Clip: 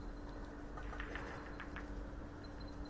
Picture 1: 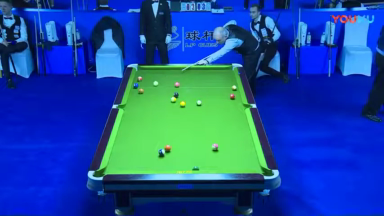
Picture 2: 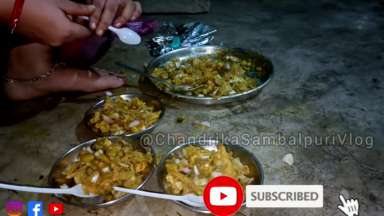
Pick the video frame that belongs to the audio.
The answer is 1